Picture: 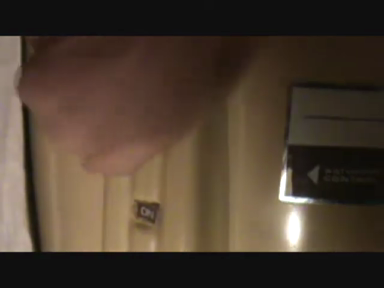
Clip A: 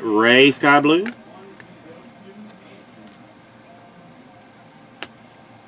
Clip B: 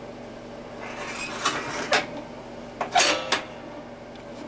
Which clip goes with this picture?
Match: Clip B